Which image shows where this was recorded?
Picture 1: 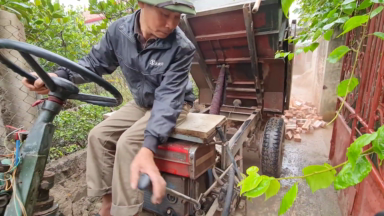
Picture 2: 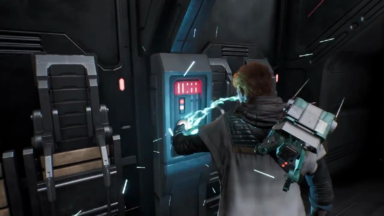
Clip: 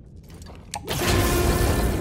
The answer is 2